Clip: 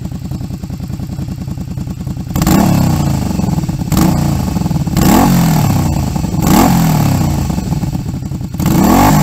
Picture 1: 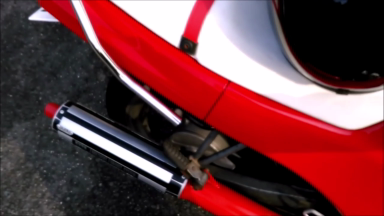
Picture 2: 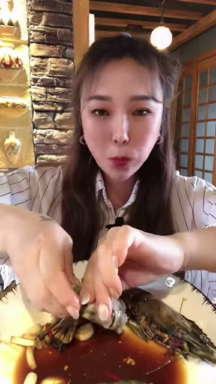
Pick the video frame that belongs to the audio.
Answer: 1